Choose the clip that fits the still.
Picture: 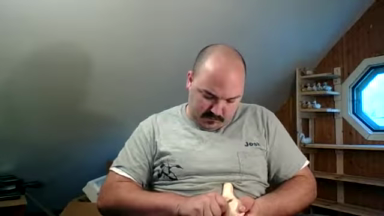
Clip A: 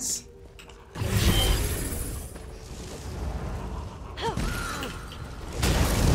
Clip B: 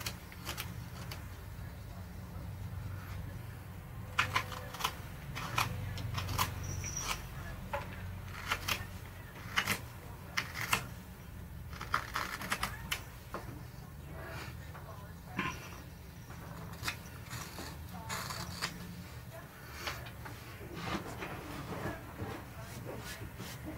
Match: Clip B